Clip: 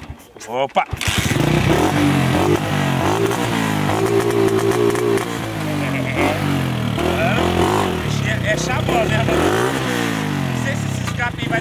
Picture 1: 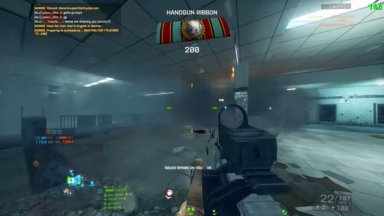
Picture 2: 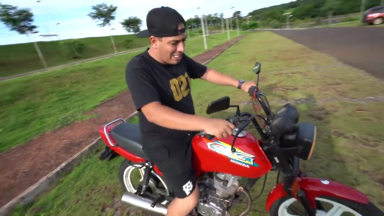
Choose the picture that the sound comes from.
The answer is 2